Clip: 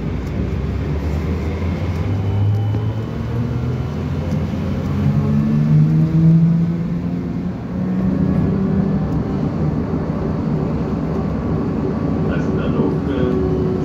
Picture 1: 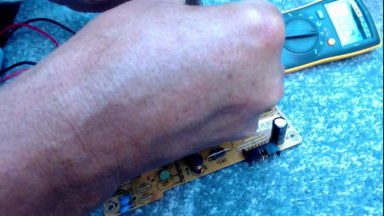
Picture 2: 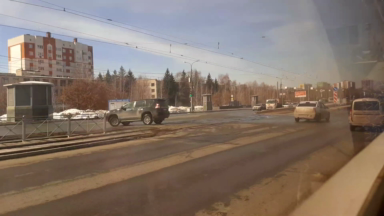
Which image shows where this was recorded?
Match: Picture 2